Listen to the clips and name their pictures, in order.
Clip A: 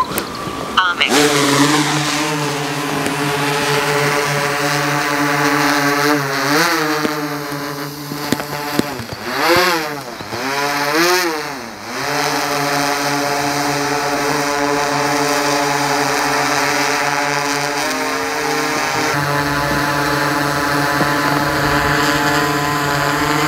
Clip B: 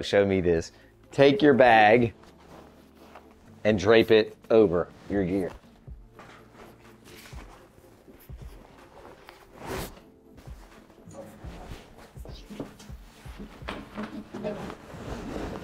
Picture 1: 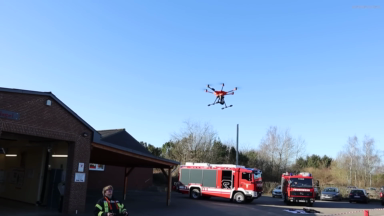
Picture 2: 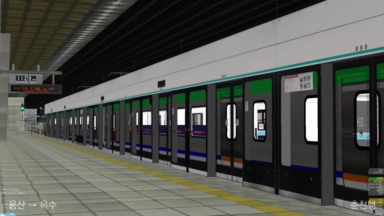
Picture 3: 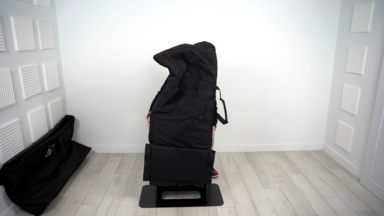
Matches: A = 1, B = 3